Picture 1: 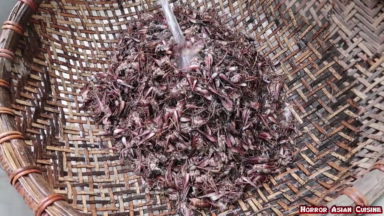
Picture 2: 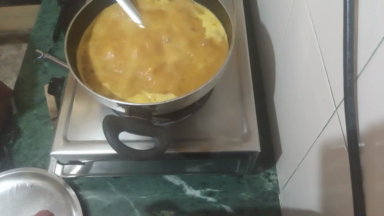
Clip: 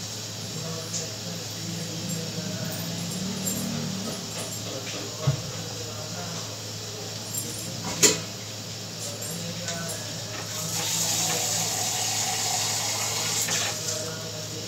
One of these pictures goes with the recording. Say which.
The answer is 2